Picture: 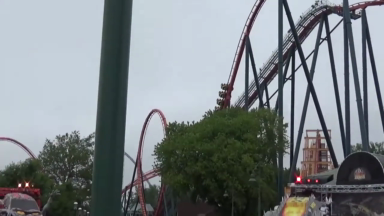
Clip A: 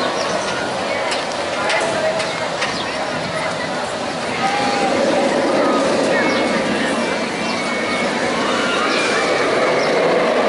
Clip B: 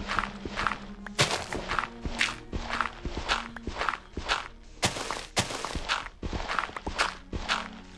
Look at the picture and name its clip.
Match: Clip A